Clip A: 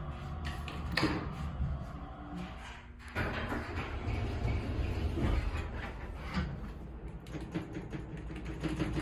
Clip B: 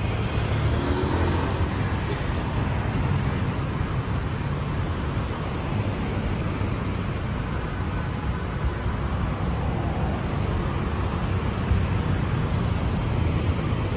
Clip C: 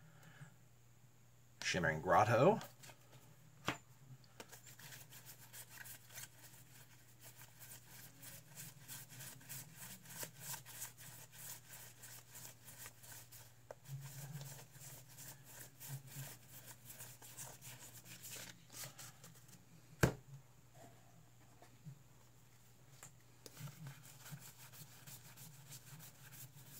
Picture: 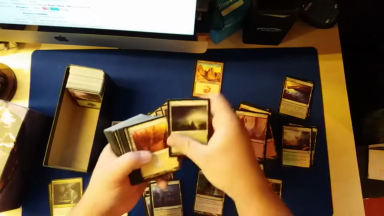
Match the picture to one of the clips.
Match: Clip C